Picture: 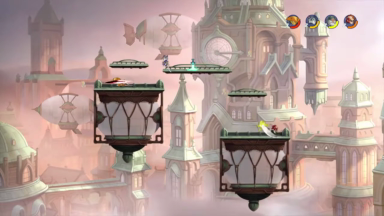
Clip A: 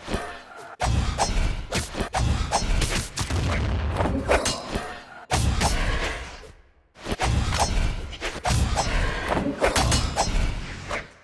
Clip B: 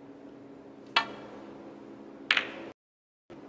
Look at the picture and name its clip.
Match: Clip A